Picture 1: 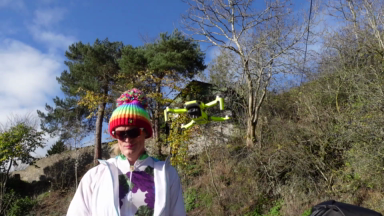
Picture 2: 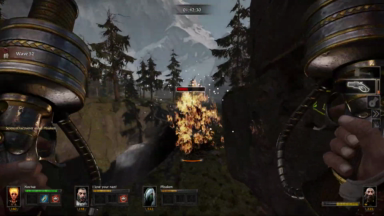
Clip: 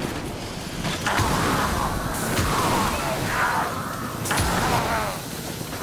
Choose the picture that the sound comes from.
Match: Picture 2